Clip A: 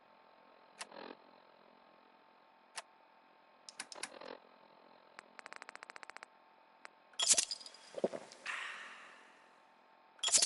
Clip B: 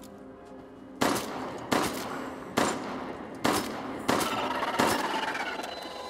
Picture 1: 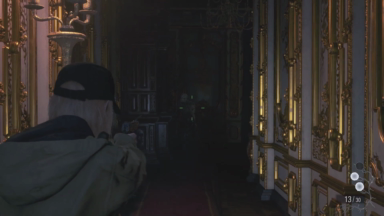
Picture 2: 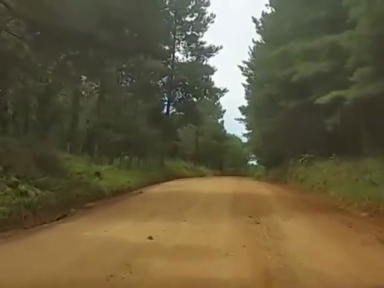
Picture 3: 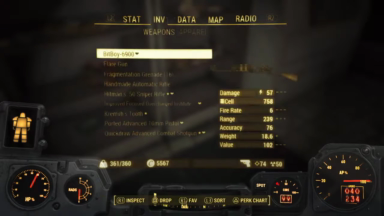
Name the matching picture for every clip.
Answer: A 3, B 1